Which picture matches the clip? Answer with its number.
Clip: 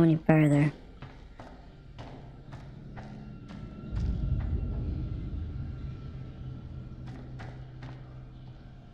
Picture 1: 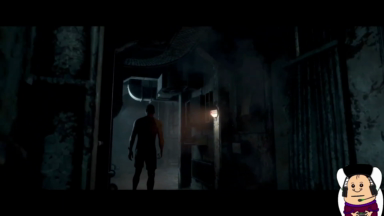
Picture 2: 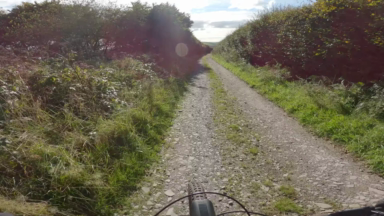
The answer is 1